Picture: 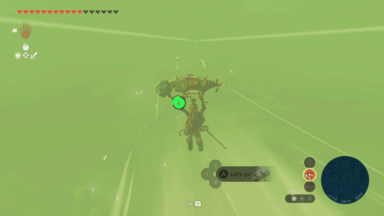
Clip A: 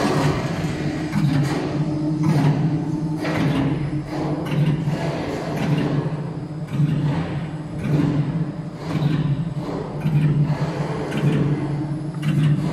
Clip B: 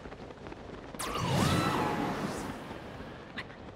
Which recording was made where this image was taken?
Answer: B